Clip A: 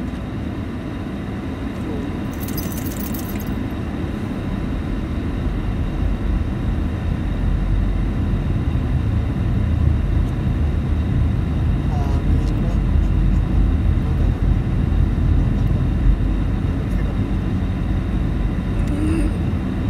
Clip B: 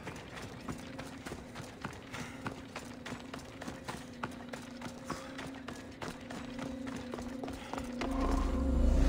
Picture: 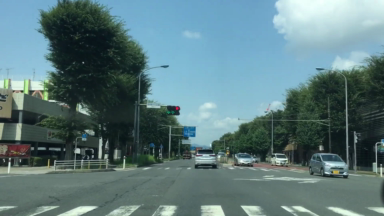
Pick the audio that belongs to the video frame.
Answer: A